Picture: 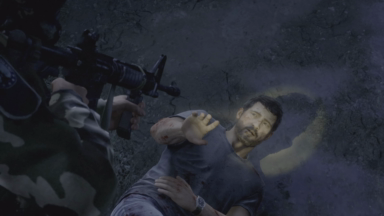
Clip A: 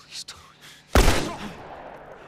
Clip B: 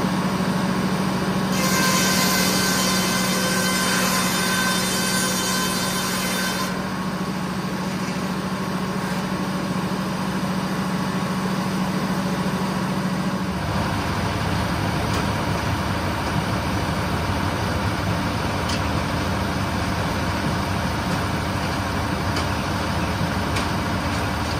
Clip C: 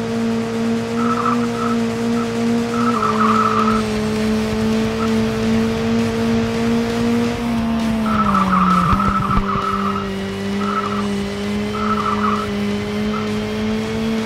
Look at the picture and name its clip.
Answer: A